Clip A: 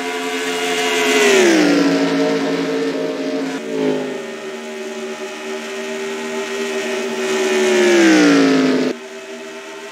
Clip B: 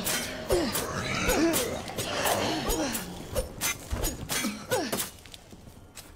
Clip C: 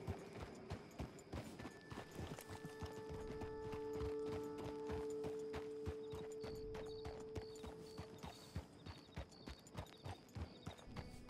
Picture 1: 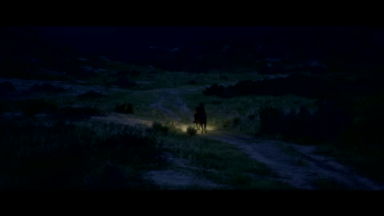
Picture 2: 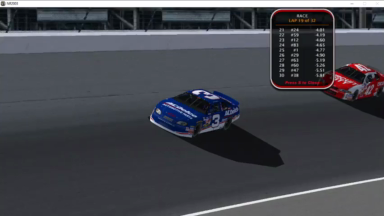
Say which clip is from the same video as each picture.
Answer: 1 C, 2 A